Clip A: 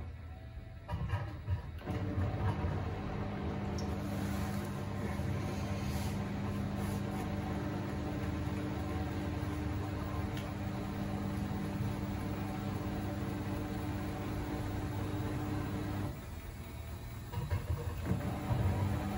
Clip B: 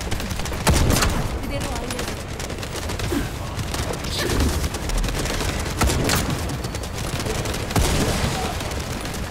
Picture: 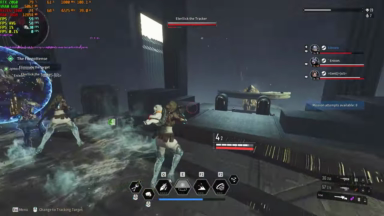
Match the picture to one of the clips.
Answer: B